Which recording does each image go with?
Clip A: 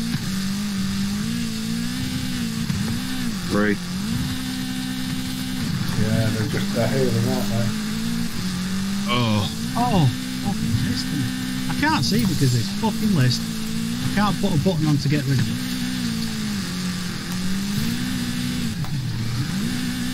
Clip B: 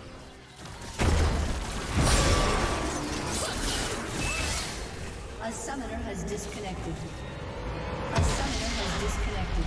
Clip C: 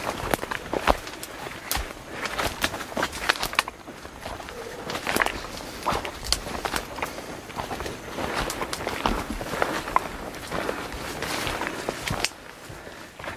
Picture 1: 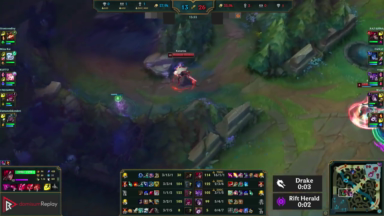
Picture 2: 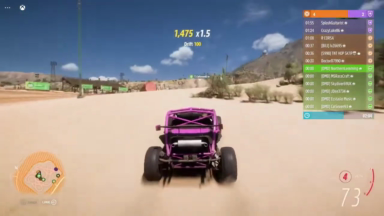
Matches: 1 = B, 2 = A